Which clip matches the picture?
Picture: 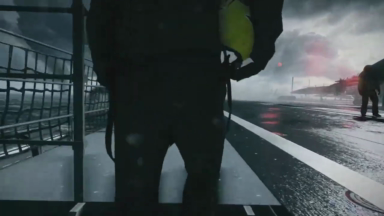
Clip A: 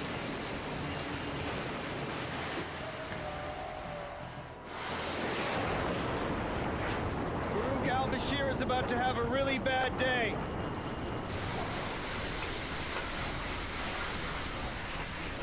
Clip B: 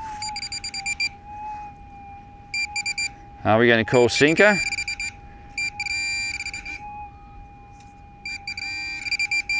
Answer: A